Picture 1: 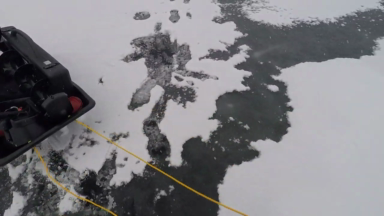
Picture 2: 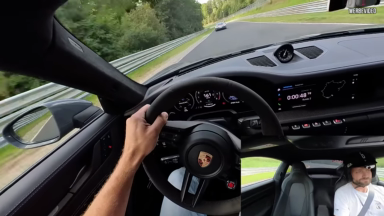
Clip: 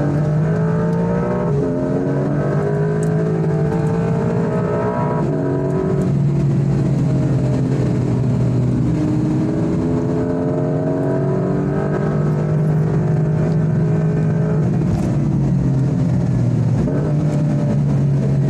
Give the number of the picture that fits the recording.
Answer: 2